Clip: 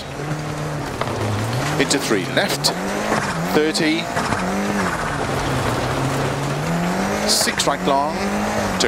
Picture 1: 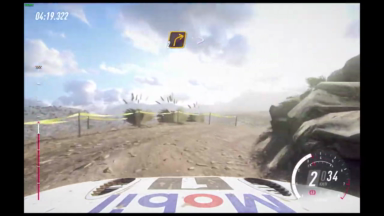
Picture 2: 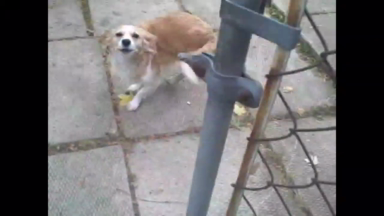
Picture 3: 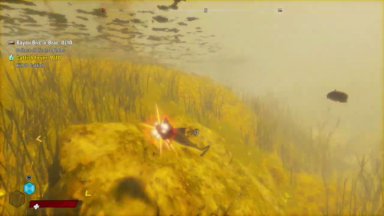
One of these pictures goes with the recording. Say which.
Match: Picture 1